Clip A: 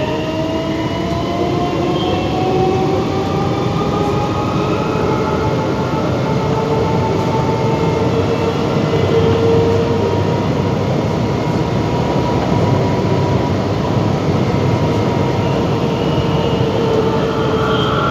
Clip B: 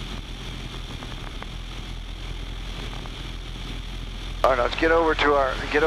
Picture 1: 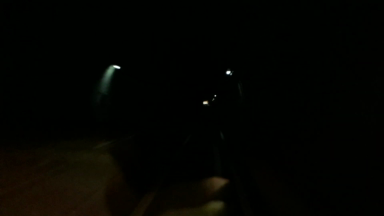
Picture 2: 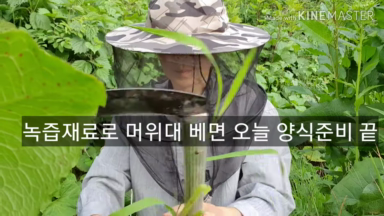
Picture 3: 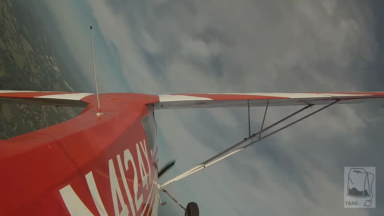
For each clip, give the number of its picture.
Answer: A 1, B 3